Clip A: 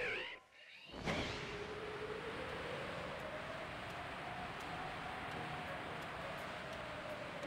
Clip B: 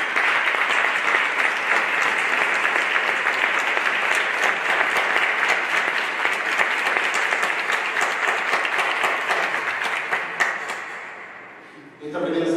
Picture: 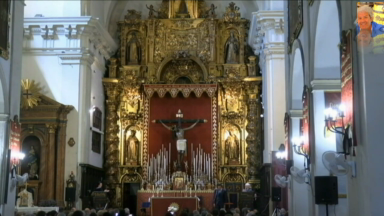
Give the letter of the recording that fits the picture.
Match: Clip B